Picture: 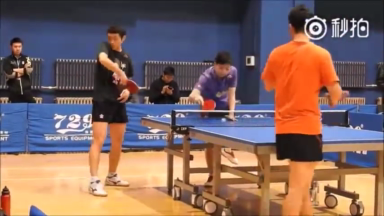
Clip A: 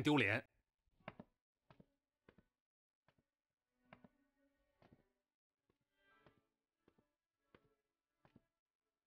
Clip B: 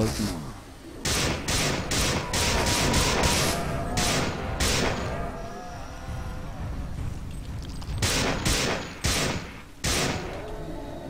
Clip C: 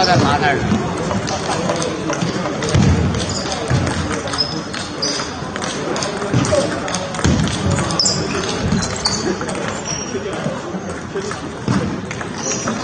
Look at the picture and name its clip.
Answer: C